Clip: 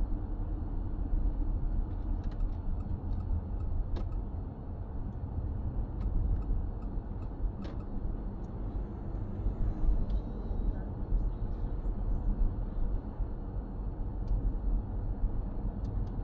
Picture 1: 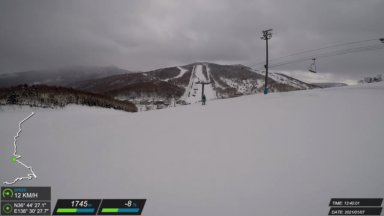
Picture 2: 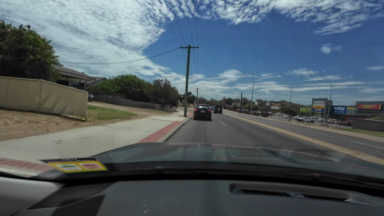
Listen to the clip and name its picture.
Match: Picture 2